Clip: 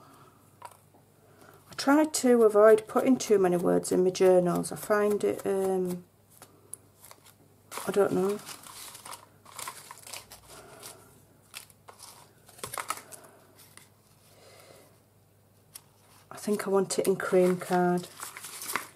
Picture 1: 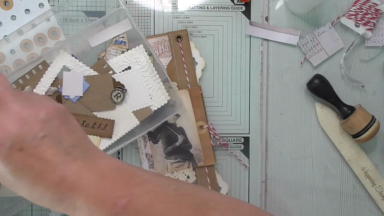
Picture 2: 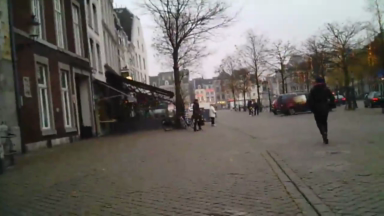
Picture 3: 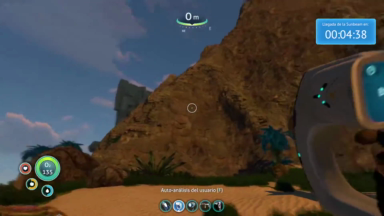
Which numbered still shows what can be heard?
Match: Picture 1